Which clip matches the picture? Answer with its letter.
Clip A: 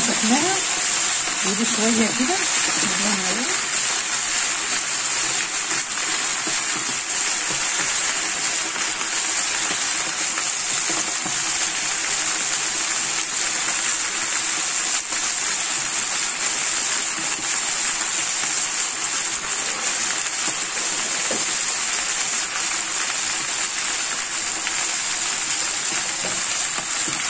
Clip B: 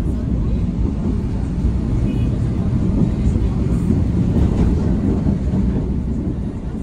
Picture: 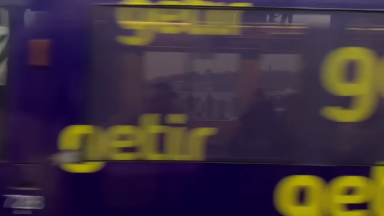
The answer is B